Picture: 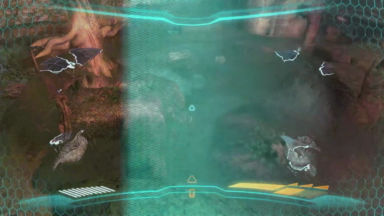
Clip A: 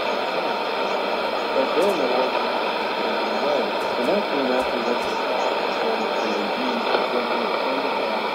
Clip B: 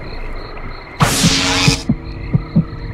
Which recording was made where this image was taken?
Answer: B